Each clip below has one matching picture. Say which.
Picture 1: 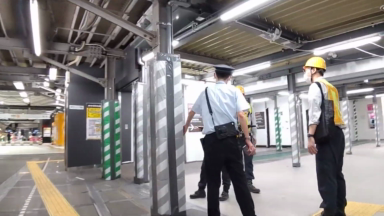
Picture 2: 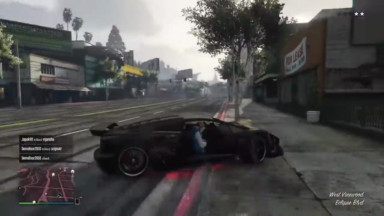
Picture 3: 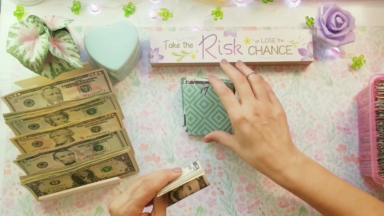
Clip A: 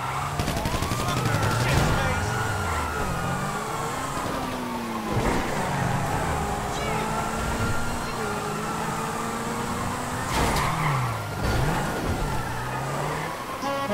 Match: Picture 2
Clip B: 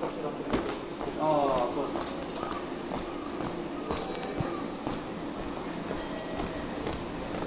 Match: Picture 1